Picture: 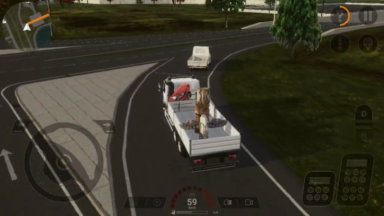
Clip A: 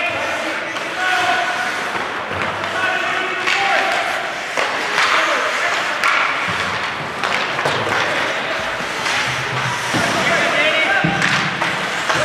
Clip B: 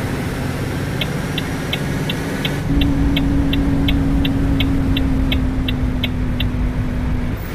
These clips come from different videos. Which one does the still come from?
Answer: B